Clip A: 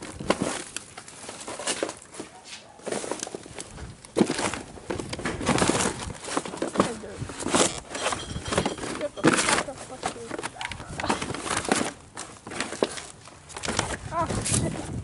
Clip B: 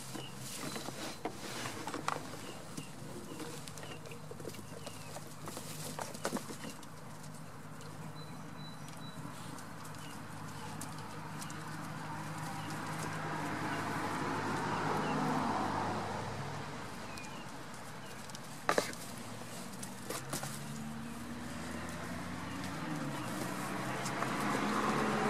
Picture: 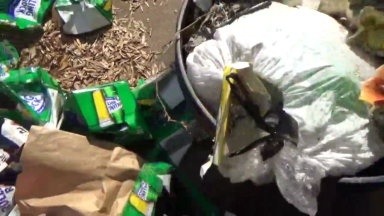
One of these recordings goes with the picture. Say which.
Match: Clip A